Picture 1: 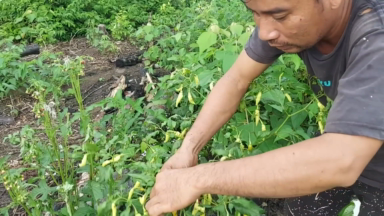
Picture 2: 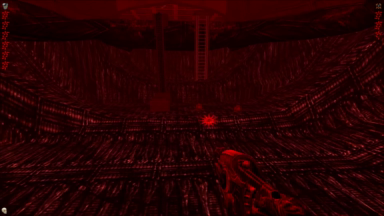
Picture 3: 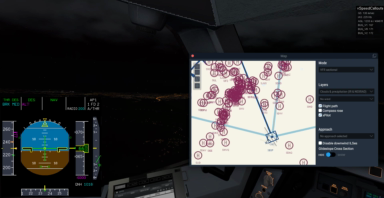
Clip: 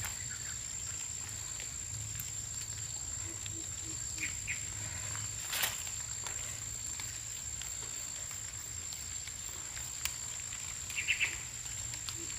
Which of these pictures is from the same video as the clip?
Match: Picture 1